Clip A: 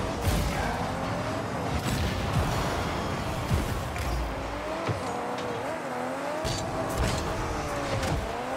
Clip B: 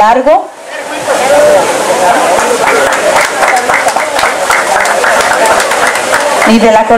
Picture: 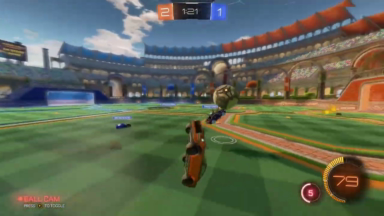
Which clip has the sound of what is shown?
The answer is A